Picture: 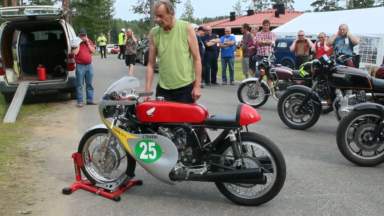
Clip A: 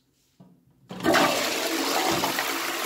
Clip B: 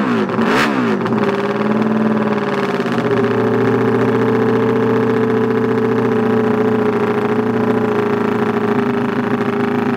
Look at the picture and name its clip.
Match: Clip B